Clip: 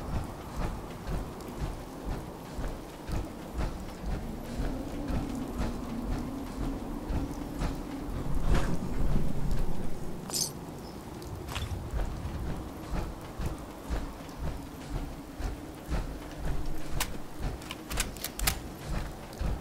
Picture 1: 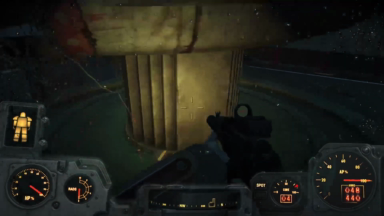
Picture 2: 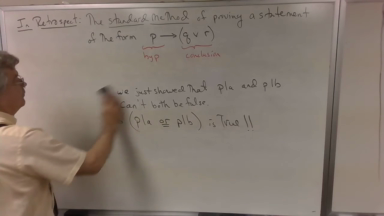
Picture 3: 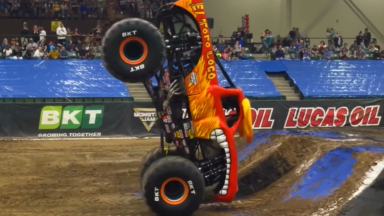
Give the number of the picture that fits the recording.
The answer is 1